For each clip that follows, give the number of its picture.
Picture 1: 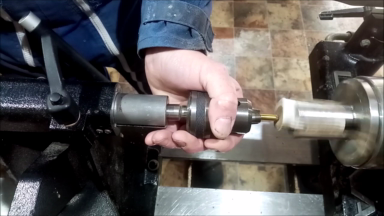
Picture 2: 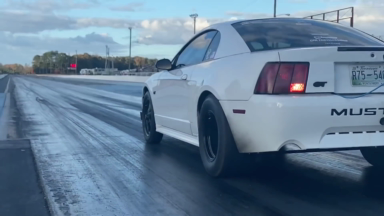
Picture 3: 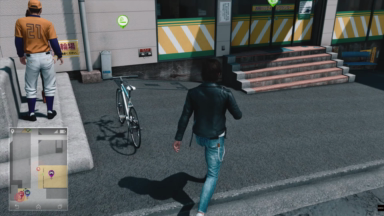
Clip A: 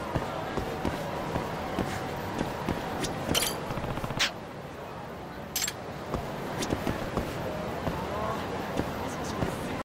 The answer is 3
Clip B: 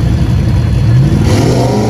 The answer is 2